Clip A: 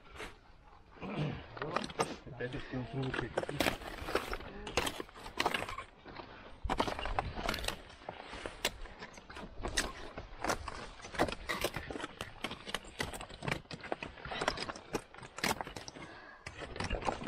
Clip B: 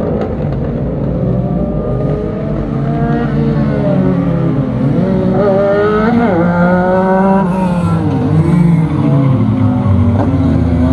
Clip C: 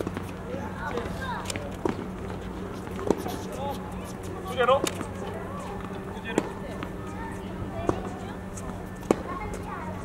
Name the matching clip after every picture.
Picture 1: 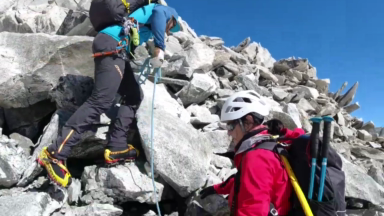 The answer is A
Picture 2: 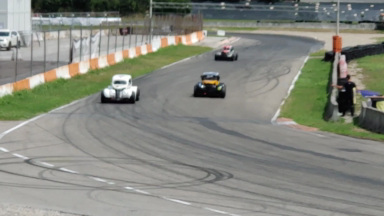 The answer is B